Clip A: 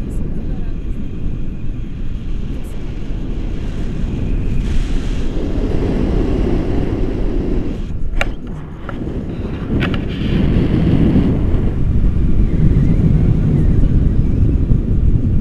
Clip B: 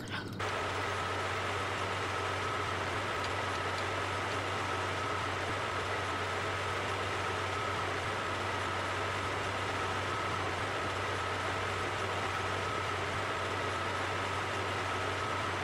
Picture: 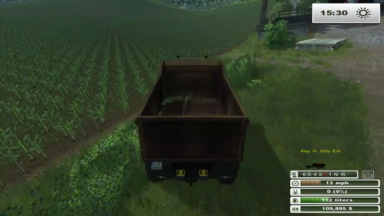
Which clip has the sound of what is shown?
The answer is B